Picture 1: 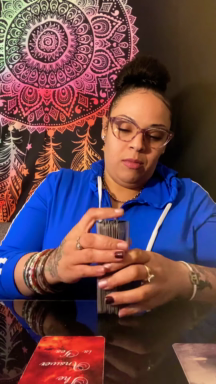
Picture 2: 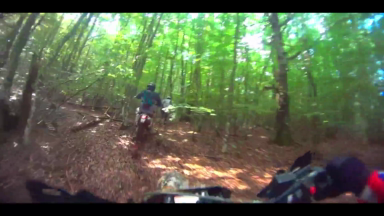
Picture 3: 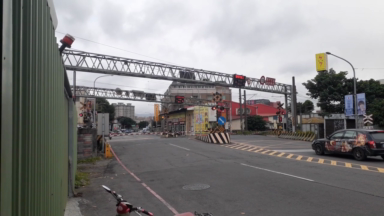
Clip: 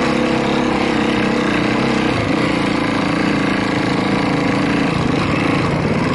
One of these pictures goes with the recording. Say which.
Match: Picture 2